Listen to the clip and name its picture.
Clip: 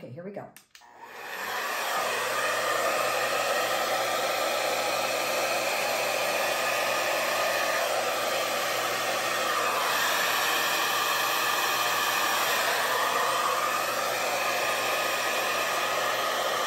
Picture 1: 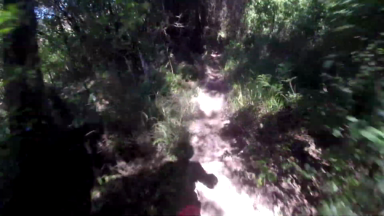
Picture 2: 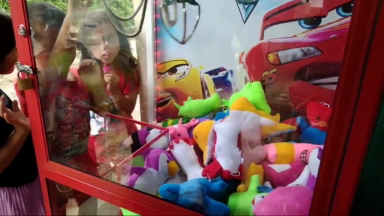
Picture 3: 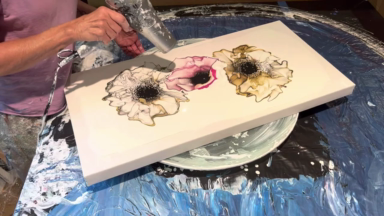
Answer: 3